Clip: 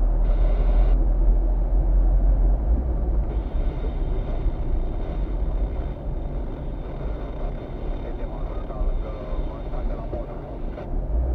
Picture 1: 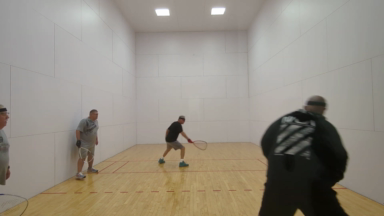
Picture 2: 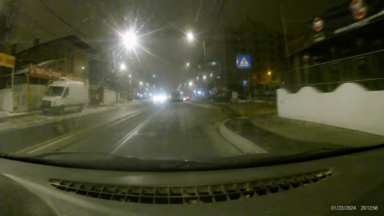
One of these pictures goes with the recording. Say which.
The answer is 2